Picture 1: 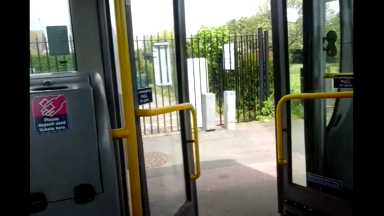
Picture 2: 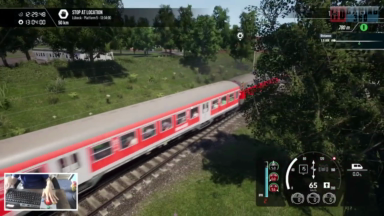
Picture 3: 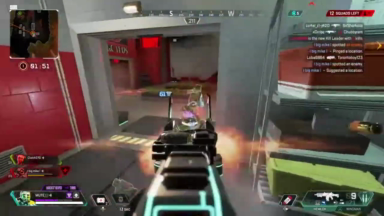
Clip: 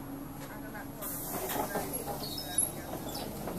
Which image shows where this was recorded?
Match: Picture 1